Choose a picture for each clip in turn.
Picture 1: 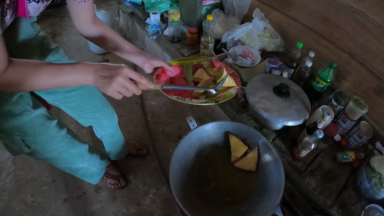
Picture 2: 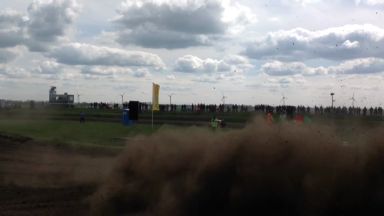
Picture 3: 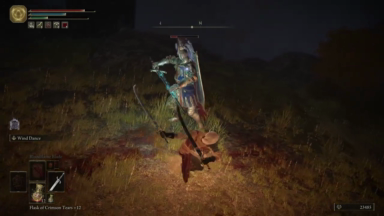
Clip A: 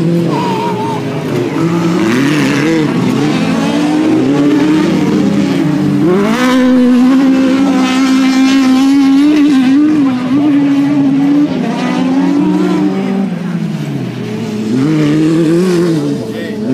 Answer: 2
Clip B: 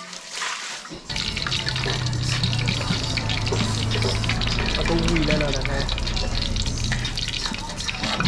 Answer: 1